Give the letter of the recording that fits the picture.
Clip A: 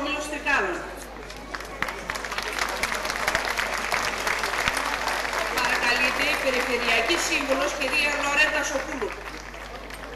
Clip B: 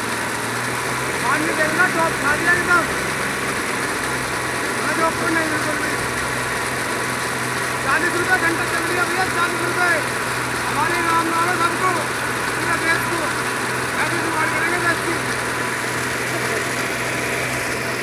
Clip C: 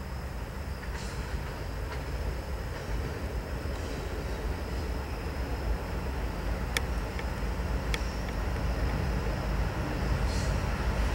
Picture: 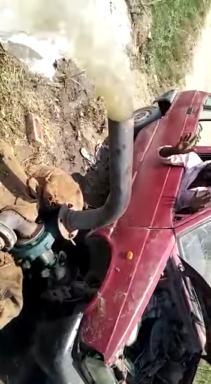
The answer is B